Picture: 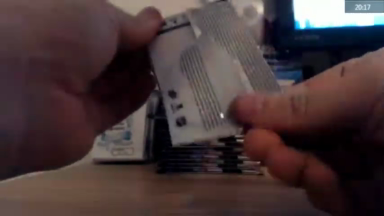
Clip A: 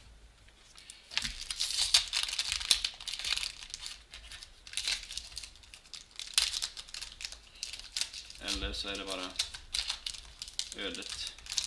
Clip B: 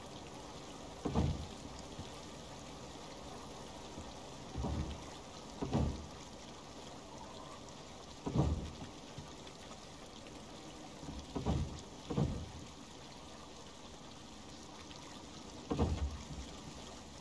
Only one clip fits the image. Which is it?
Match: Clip A